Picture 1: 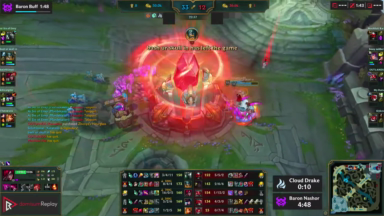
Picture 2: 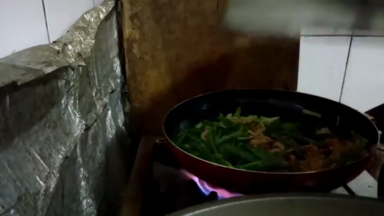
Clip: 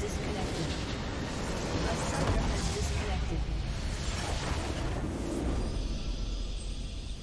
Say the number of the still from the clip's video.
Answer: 1